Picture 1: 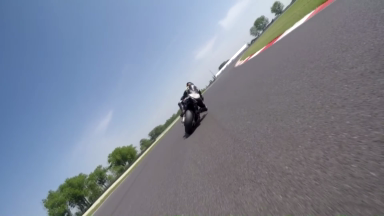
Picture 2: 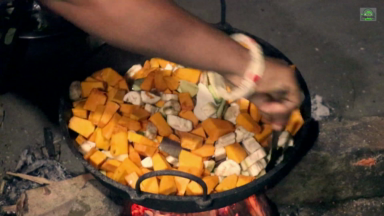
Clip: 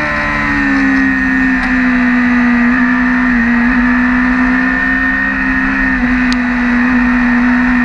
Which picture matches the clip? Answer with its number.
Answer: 1